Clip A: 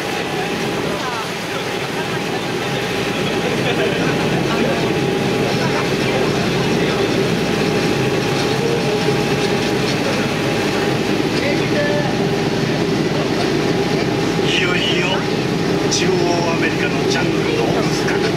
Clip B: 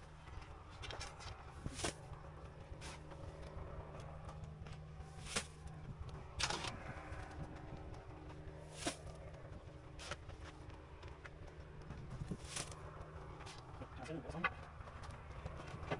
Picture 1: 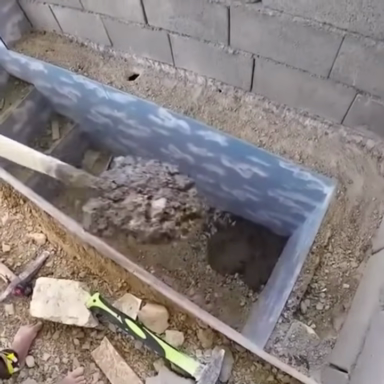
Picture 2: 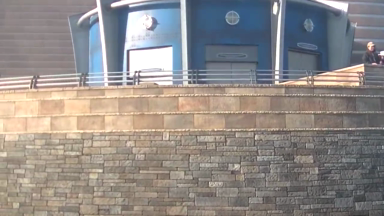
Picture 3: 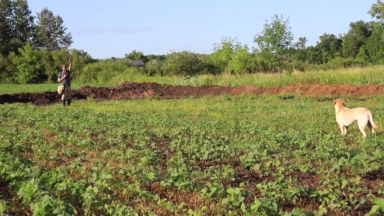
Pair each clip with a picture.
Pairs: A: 2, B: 1